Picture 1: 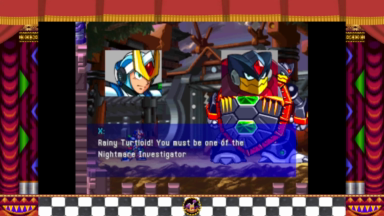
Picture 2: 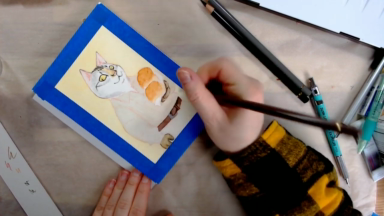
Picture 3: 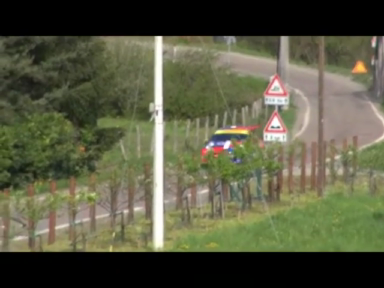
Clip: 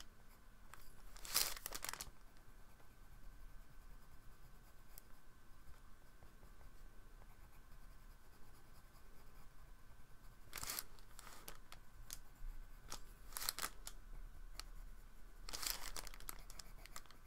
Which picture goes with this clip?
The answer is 2